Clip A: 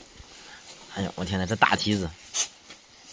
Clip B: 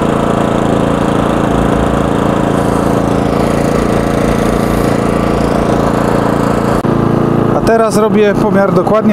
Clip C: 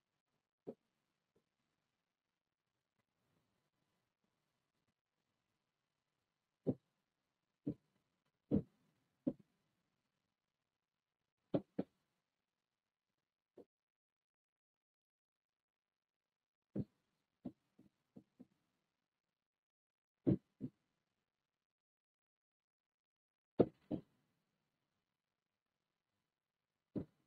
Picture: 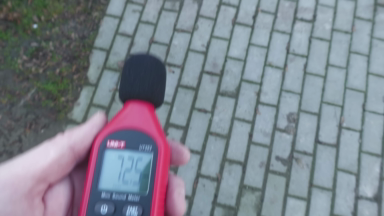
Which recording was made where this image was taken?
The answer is B